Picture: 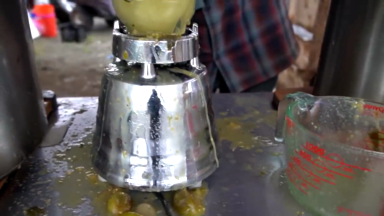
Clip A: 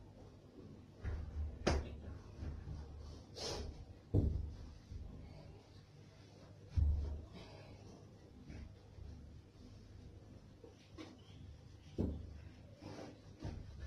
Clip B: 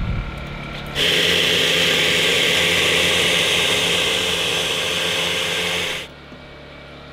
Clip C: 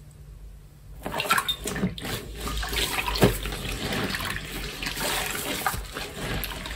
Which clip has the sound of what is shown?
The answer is B